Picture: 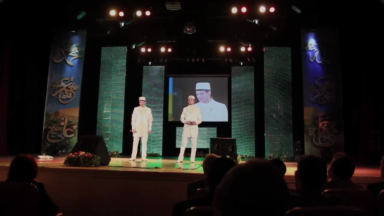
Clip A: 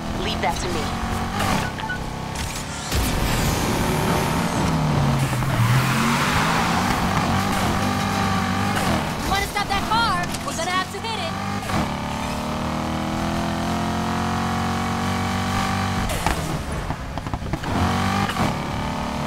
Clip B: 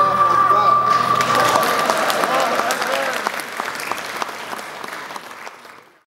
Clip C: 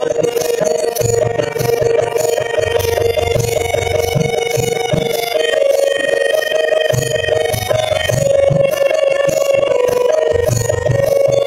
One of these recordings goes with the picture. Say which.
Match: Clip B